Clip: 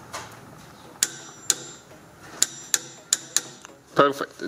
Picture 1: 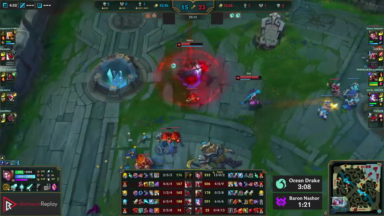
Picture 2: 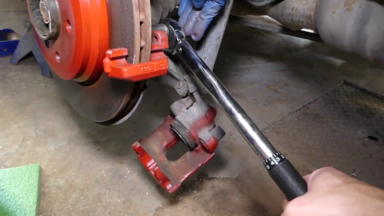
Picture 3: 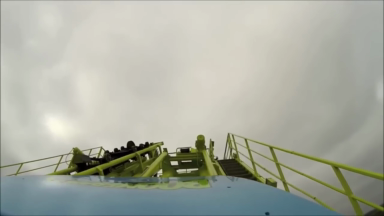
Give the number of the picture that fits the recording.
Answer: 2